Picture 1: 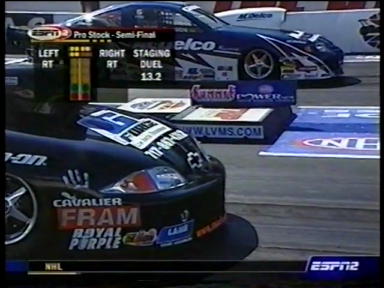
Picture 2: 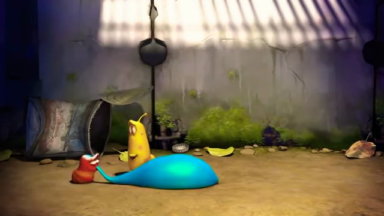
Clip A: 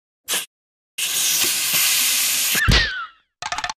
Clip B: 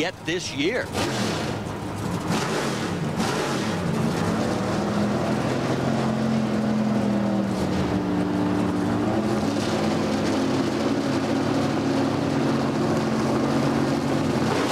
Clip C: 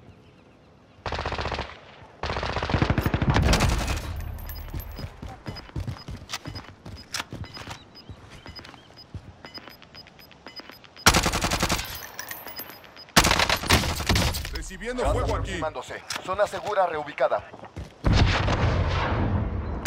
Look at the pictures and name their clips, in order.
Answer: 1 B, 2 A